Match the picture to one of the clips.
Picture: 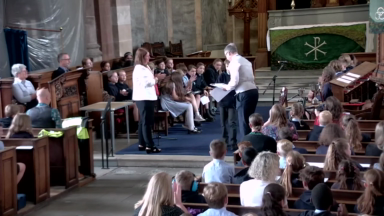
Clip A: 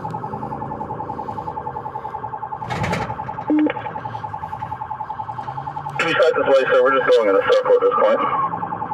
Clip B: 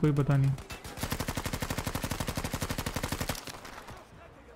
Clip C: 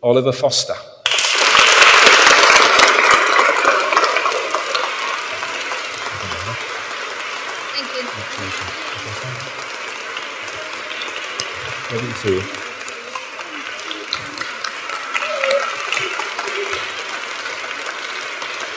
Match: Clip C